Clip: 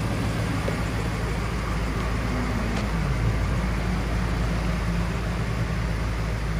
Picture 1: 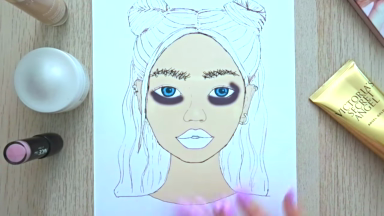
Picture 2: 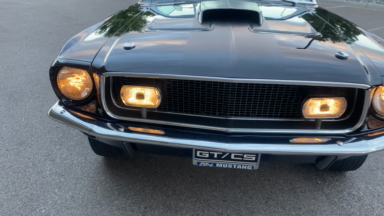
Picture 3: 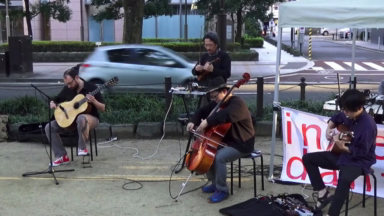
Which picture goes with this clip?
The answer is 2